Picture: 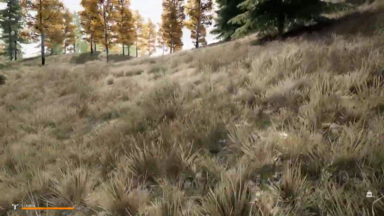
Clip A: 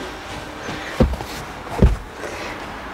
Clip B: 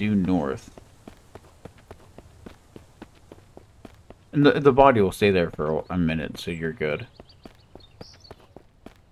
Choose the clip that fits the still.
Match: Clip B